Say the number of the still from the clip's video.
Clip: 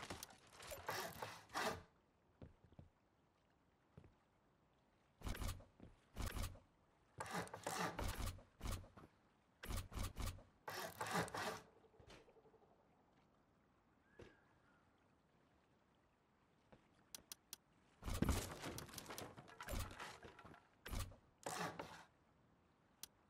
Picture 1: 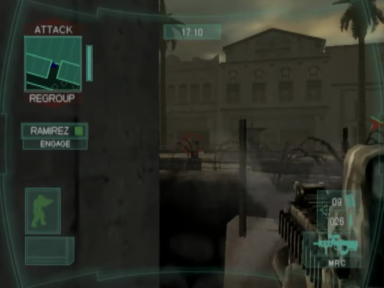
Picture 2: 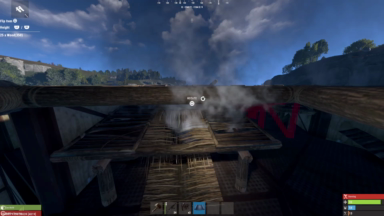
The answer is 2